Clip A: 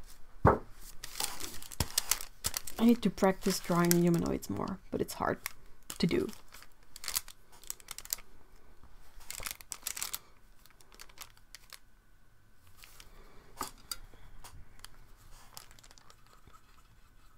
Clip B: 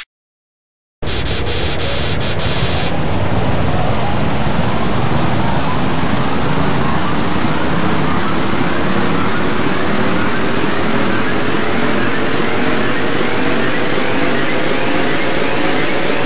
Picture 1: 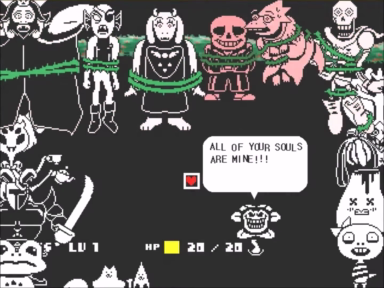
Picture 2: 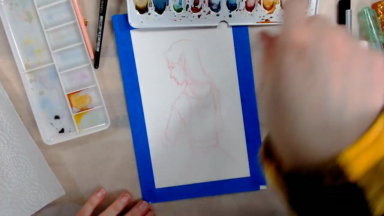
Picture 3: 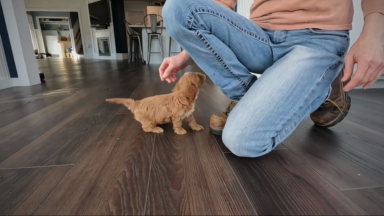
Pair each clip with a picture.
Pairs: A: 2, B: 1